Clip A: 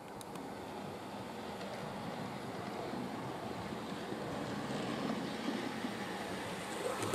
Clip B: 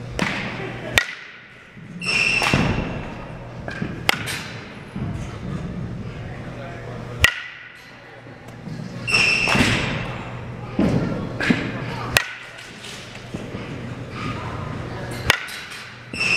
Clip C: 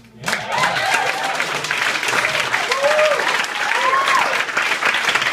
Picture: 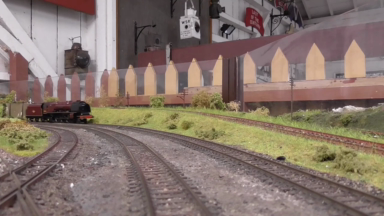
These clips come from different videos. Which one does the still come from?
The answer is A